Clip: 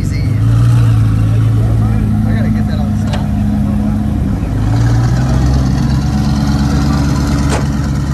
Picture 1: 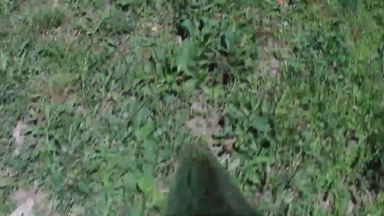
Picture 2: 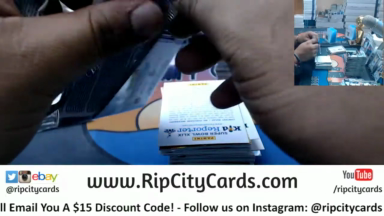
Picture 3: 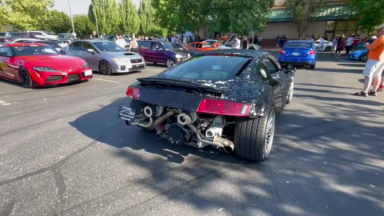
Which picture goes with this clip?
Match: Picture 3